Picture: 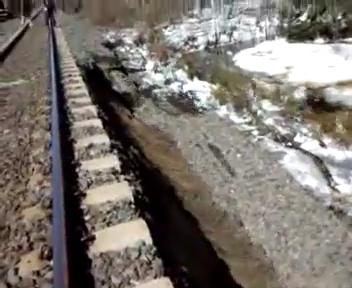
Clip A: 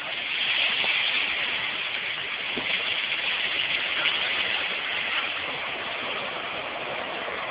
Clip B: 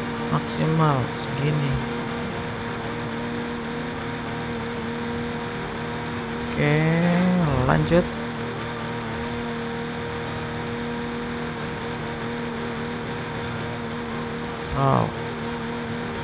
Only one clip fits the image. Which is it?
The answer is A